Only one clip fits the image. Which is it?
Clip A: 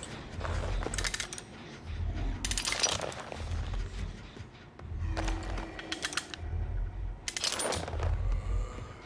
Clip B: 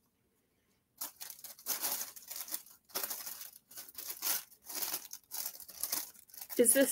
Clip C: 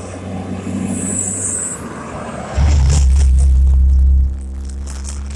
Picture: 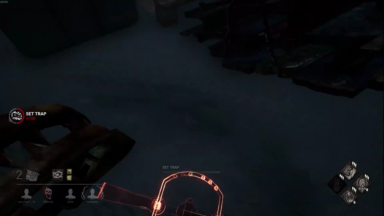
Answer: A